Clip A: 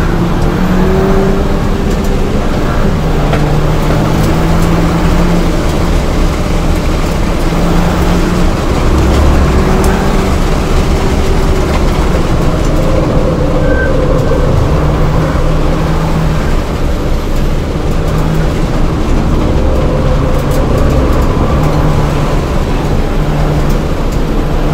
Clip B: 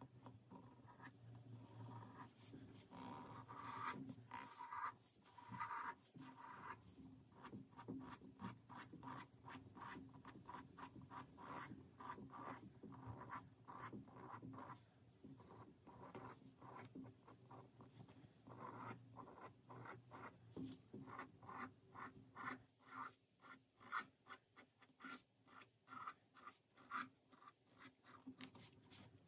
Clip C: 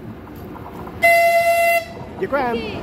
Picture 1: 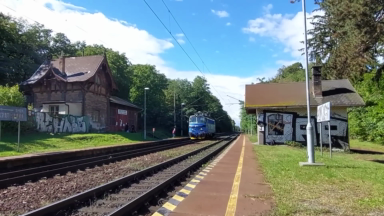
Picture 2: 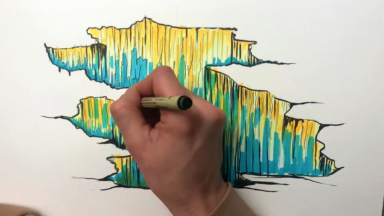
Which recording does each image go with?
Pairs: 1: C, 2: B